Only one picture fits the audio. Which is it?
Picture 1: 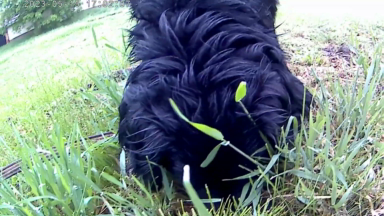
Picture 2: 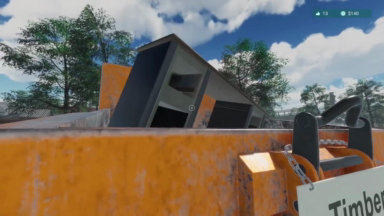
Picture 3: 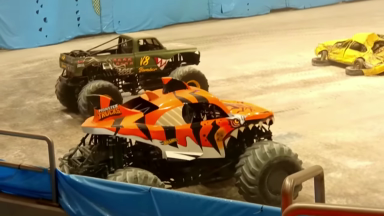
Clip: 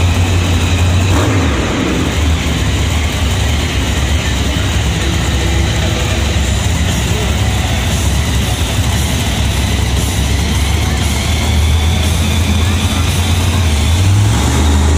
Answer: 3